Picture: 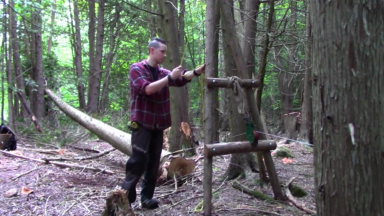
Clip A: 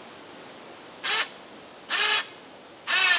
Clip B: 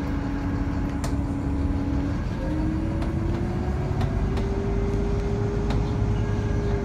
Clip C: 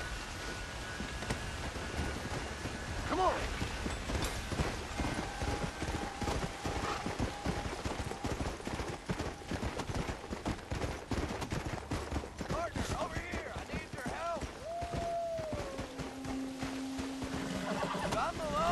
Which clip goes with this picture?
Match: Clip A